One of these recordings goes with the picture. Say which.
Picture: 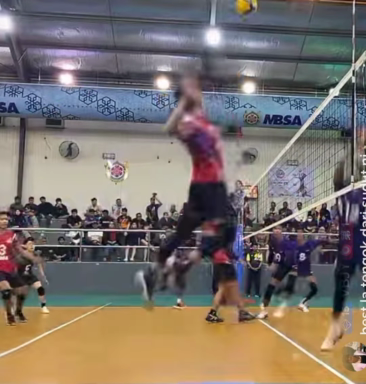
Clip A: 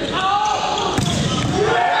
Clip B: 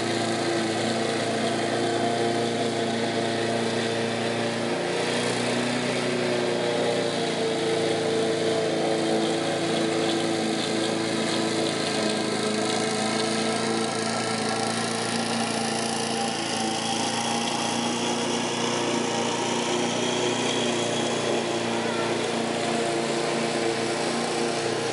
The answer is A